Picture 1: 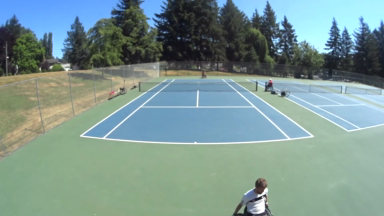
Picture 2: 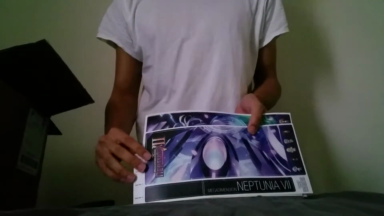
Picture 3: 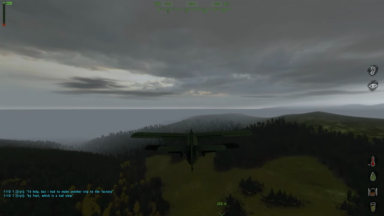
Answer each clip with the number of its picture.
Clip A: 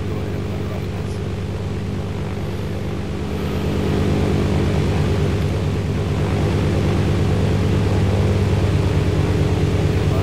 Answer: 3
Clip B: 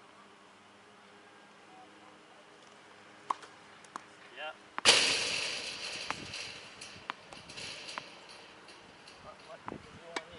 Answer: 1